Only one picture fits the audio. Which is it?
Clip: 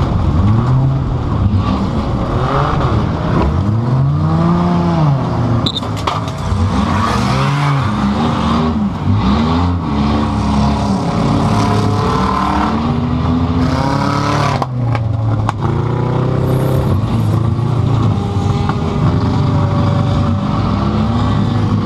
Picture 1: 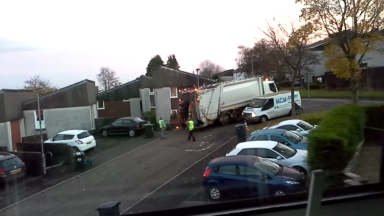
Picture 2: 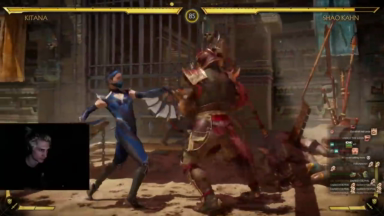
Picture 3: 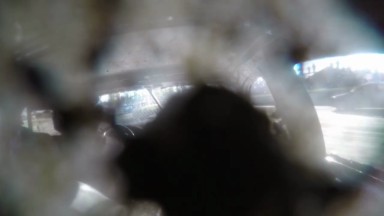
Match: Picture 3